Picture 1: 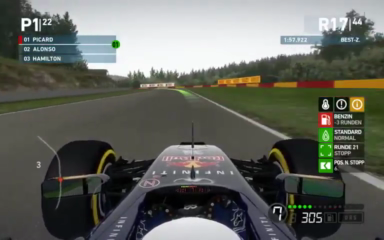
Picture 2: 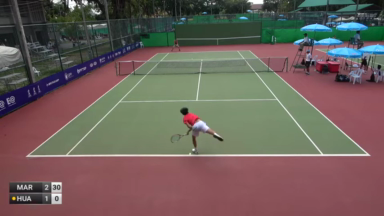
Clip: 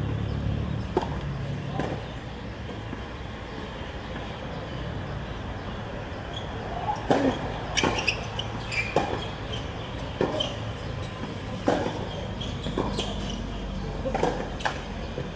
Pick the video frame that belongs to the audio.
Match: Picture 2